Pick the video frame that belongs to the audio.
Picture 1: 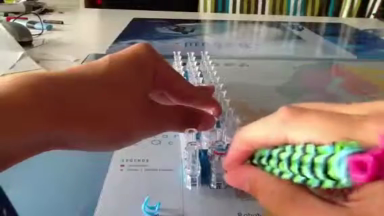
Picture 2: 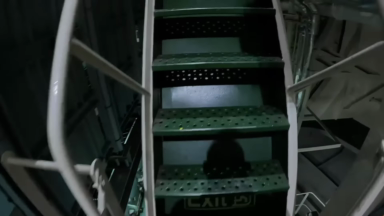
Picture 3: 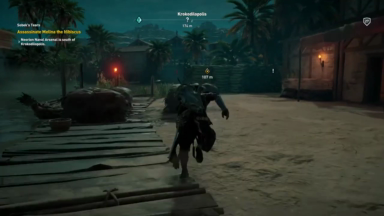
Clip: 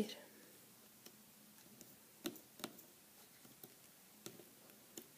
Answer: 1